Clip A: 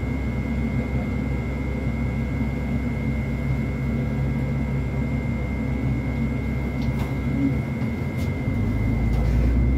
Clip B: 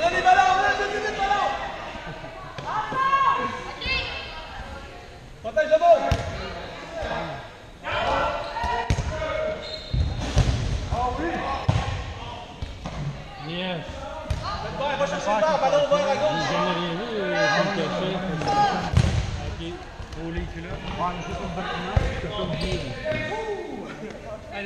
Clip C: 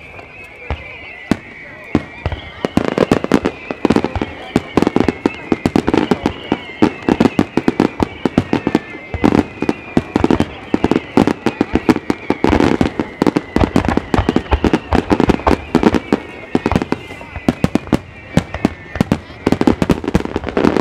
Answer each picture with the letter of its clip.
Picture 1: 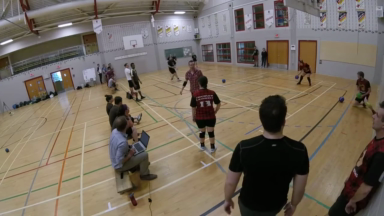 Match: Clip B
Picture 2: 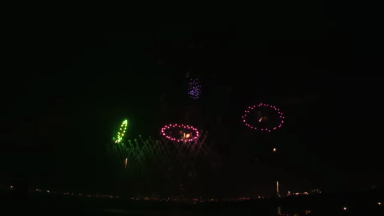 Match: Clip C